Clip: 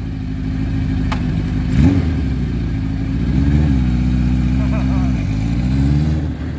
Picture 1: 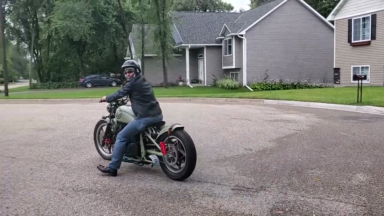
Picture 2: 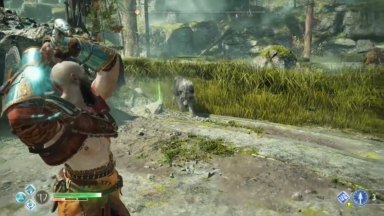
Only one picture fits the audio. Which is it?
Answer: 1